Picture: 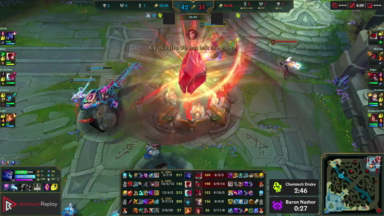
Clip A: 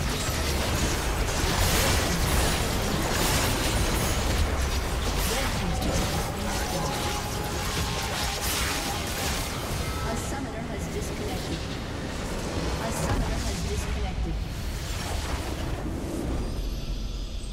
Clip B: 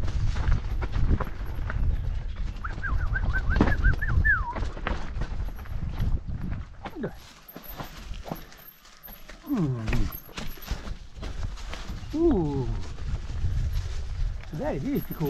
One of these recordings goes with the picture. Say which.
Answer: A